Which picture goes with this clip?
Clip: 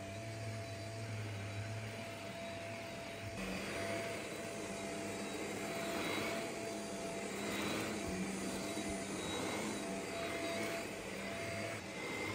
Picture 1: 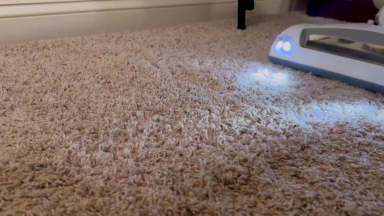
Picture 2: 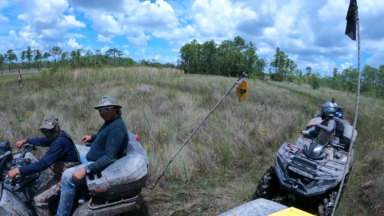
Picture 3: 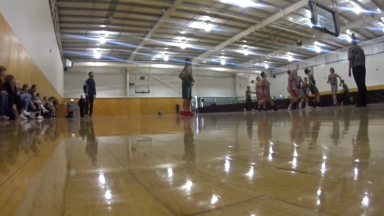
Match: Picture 1